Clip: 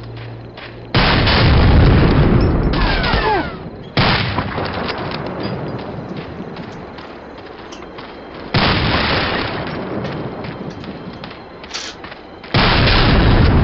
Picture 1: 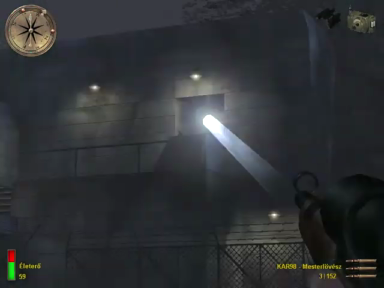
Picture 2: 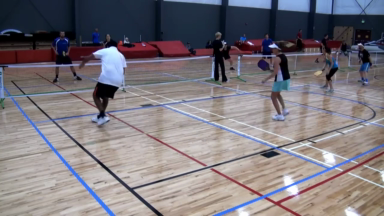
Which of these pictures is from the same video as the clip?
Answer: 1